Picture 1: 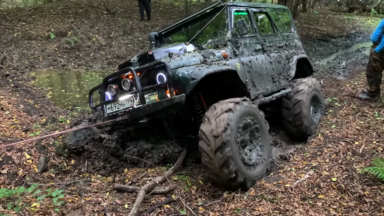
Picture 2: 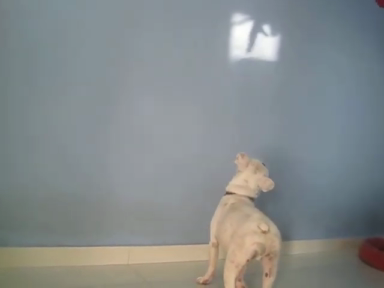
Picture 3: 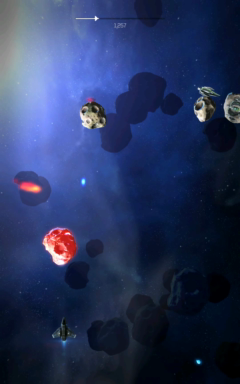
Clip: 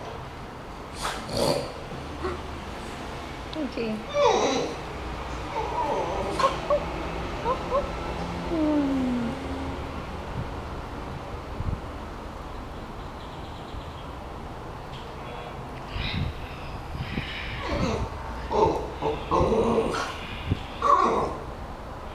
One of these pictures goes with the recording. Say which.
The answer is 2